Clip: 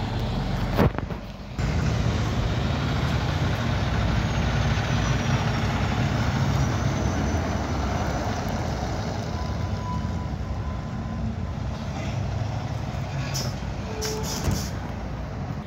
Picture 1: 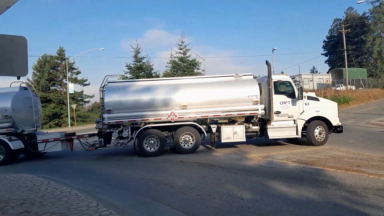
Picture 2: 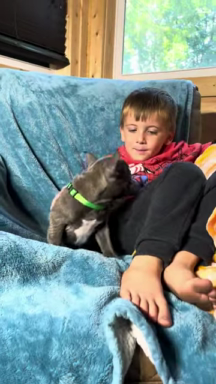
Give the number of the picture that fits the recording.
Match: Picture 1